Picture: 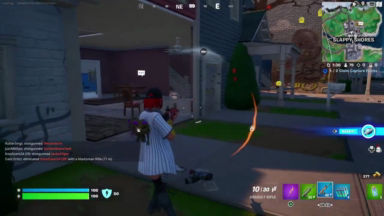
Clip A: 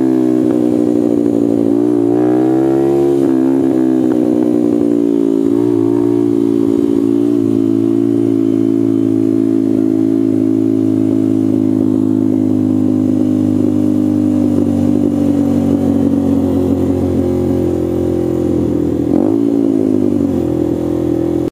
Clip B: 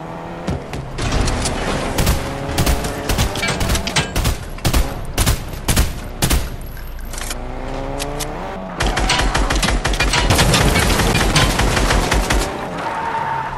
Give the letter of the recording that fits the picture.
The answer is B